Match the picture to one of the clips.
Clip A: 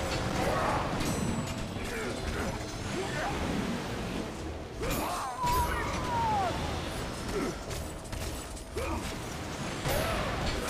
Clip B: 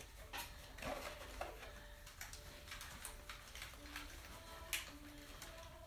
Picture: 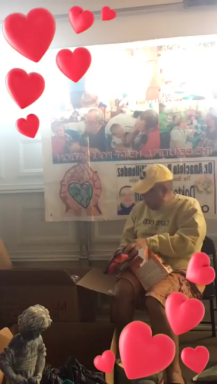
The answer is B